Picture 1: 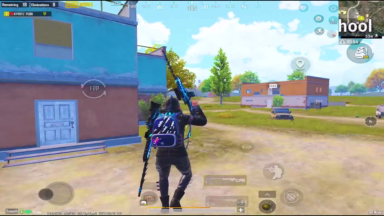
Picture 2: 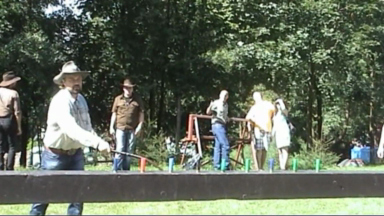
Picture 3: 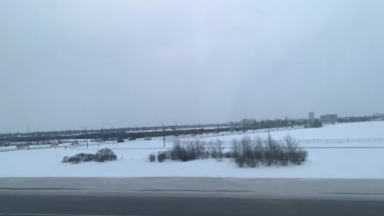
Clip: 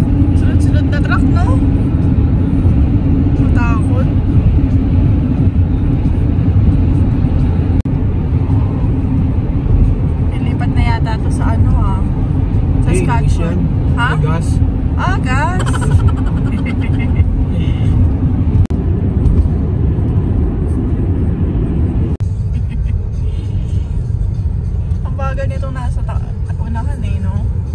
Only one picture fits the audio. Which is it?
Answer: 3